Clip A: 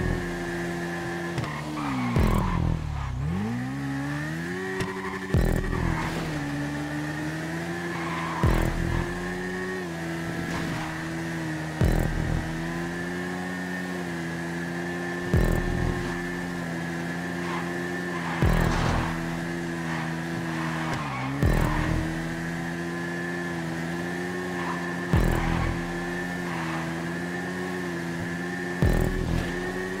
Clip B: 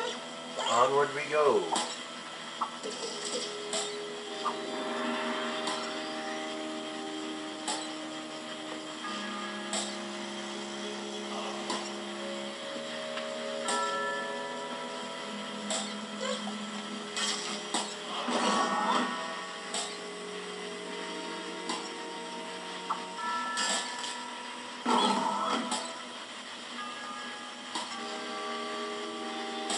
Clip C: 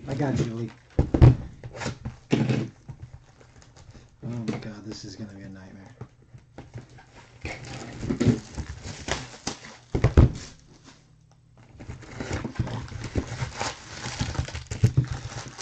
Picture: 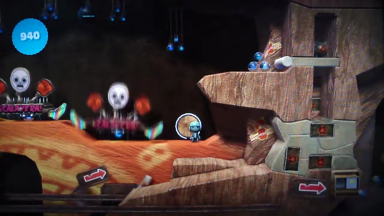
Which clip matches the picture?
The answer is B